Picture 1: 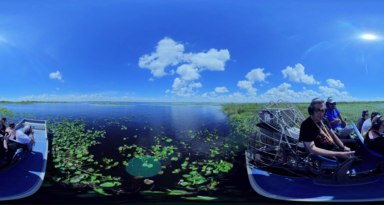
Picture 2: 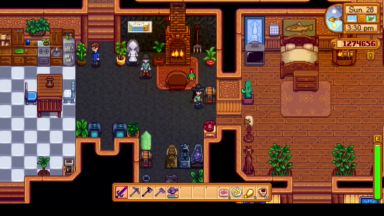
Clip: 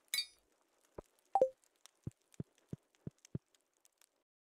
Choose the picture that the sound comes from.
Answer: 2